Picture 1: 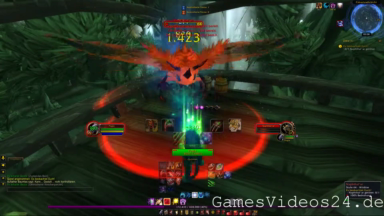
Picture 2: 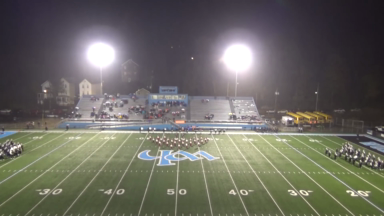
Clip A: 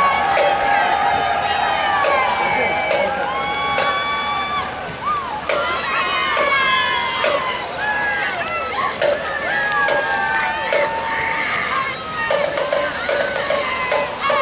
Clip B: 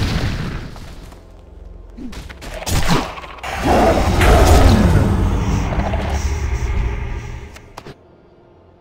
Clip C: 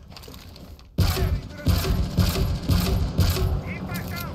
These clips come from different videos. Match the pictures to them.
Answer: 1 B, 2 A